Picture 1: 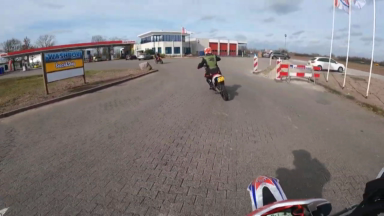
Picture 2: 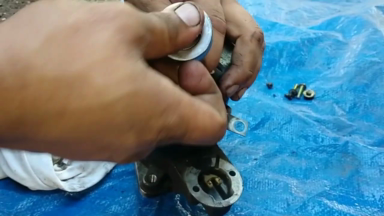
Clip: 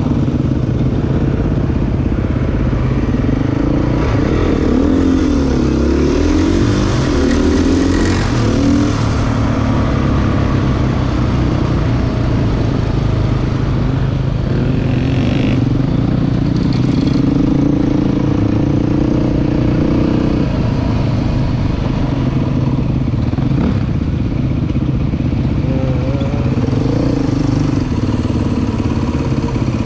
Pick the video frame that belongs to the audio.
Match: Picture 1